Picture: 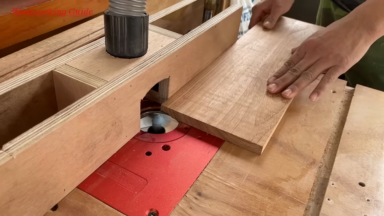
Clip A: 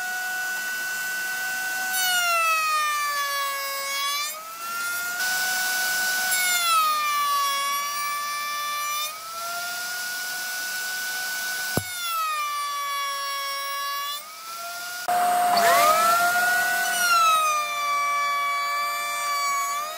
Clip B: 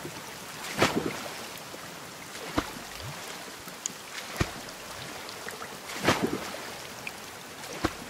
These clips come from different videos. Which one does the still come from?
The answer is A